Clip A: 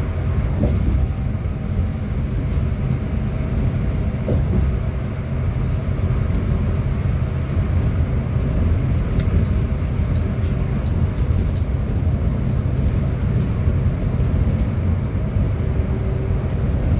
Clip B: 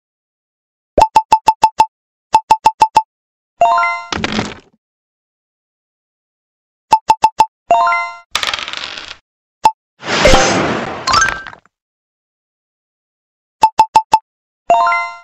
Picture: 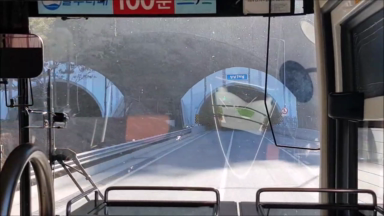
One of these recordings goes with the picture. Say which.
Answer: A